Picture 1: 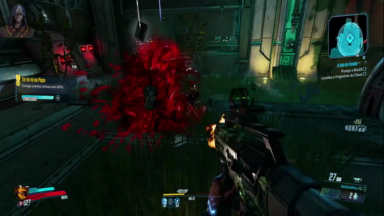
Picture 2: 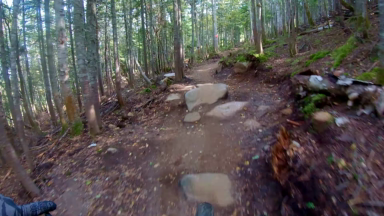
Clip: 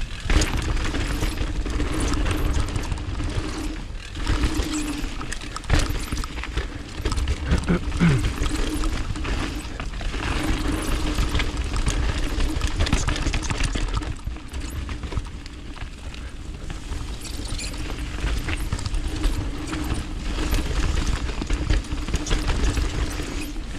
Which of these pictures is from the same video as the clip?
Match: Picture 2